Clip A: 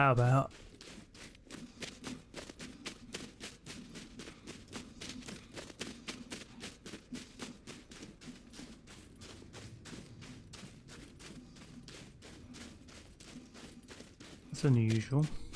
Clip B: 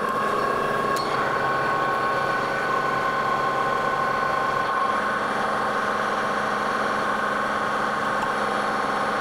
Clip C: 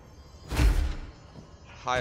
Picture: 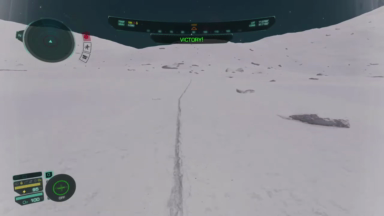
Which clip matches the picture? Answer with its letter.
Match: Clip A